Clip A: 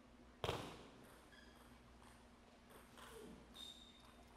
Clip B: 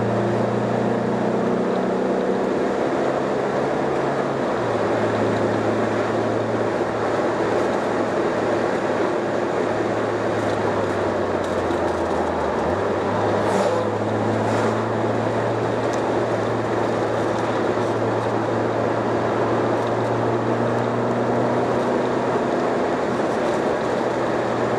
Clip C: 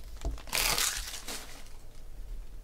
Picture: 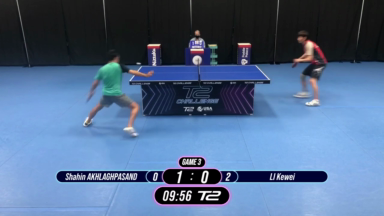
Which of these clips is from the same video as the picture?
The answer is A